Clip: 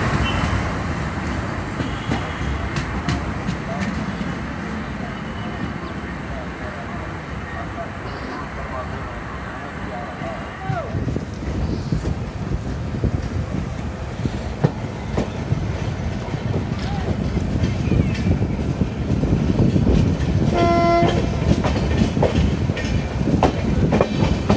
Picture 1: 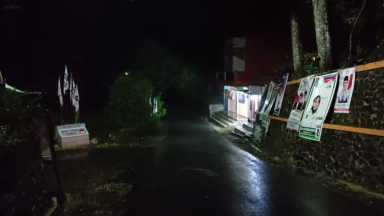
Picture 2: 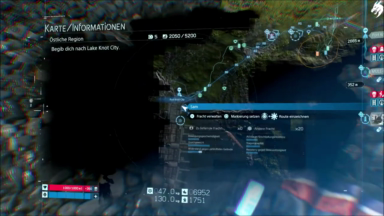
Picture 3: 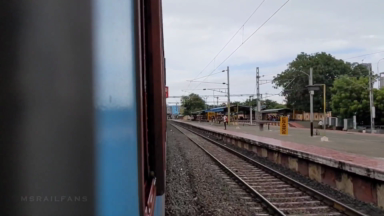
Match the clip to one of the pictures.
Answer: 3